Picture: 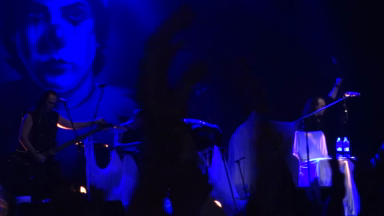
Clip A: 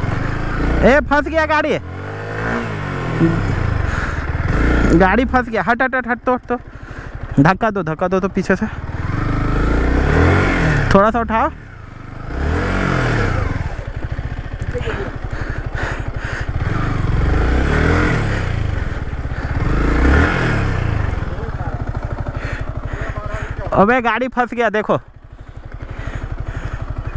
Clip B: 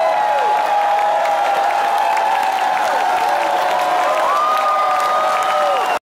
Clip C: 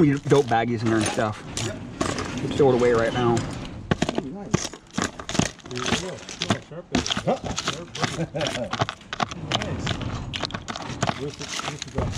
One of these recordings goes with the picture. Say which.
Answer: B